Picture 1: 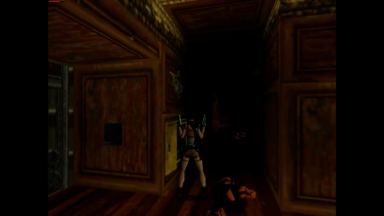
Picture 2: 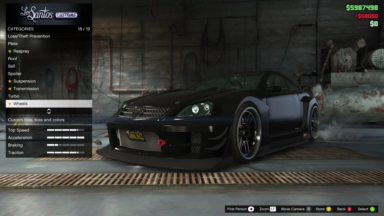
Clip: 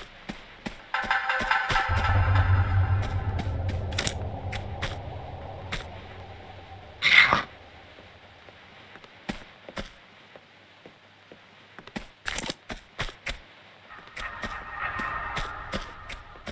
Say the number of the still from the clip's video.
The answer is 1